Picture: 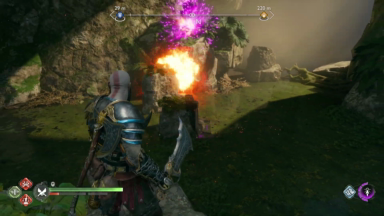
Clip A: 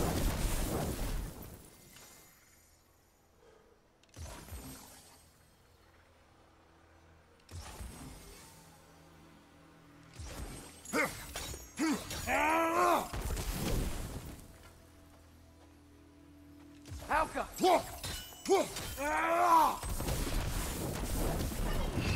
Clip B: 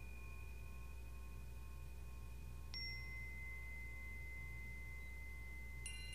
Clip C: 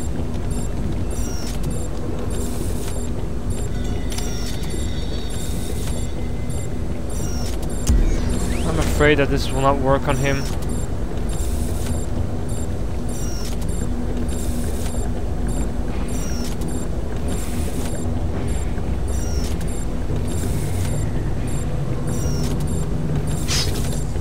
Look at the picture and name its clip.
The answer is A